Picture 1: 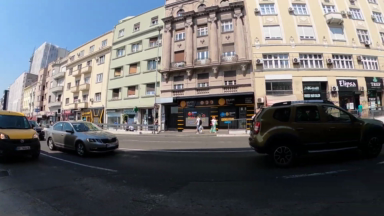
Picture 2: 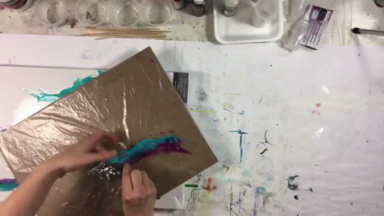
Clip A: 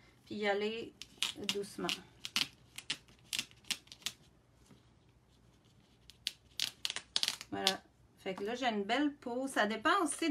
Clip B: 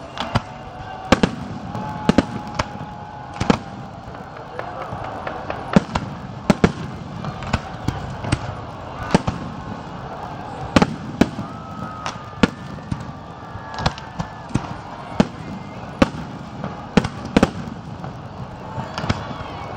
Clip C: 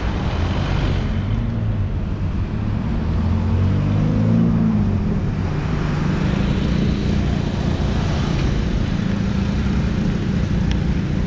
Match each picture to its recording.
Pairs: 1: C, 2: A